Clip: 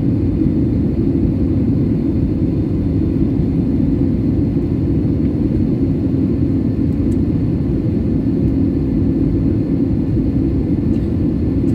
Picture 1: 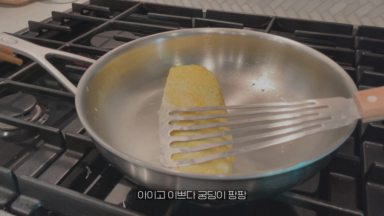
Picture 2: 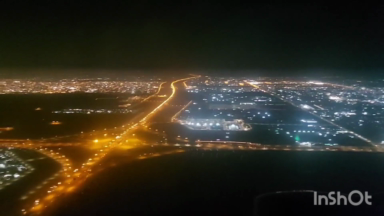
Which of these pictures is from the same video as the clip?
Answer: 2